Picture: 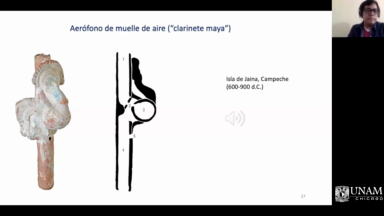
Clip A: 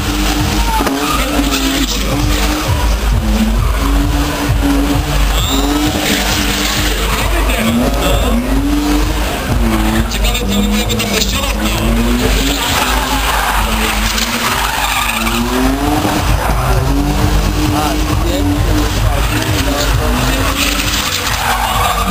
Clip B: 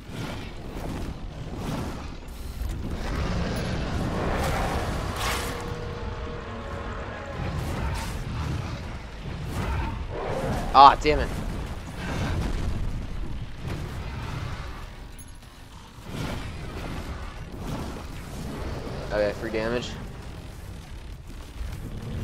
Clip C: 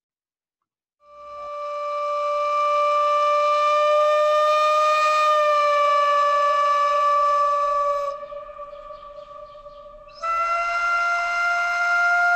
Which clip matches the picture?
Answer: C